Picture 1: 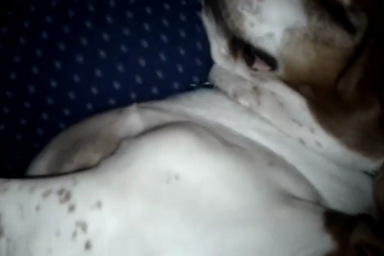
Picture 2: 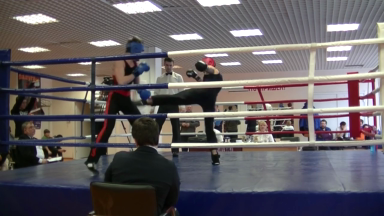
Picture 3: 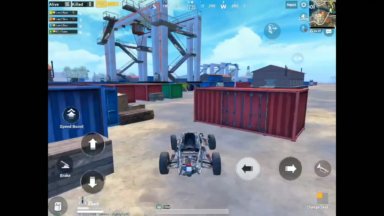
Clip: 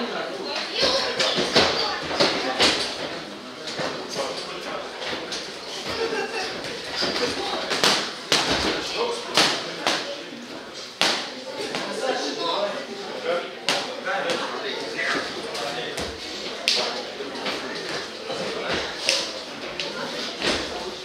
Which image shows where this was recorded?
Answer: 2